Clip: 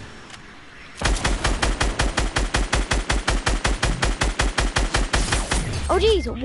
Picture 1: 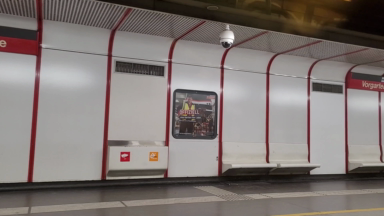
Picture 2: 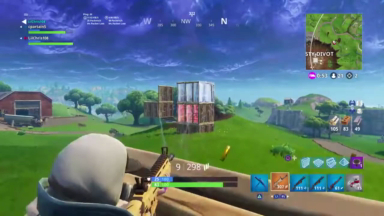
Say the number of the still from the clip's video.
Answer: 2